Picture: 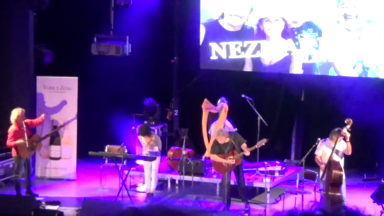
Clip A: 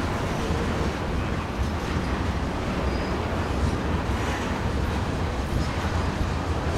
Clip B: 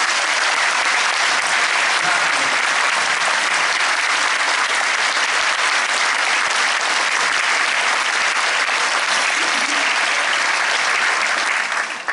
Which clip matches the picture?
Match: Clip B